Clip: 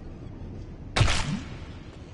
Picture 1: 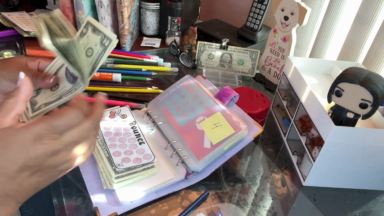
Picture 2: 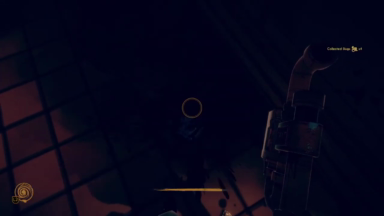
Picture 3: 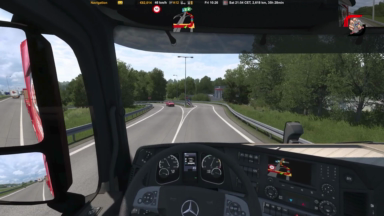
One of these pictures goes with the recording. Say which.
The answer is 2